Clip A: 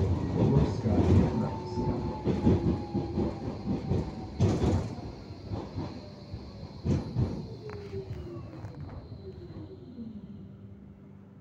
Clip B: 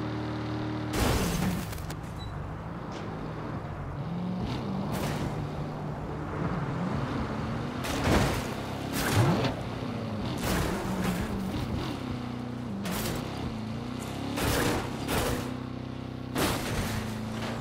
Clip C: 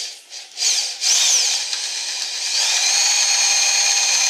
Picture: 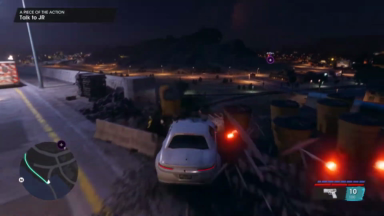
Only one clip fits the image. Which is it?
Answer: B